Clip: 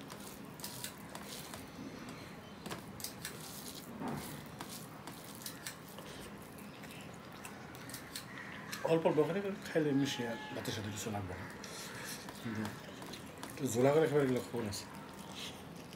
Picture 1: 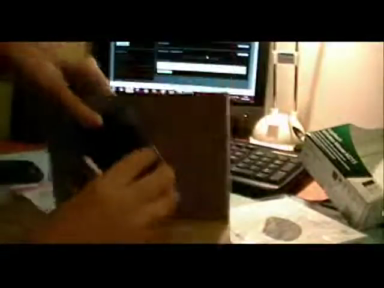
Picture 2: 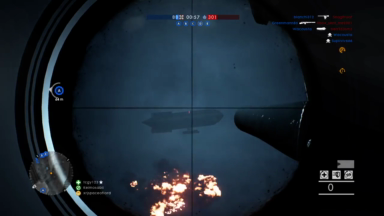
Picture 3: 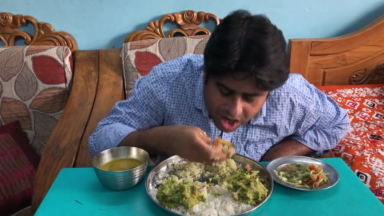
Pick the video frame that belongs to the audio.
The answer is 3